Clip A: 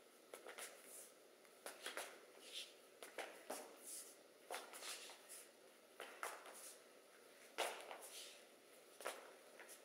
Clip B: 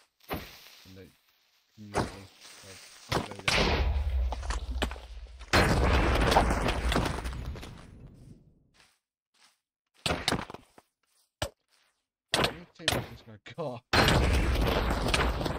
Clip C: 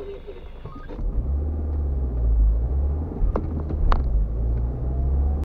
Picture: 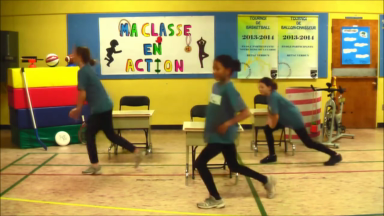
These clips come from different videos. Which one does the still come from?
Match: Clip A